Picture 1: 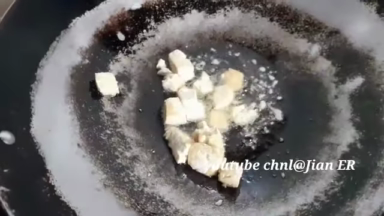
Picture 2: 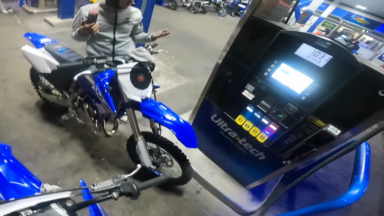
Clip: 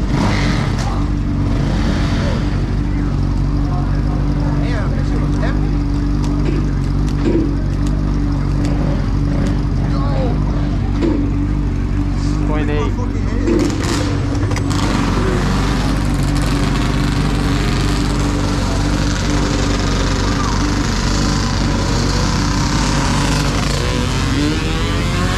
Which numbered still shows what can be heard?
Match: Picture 2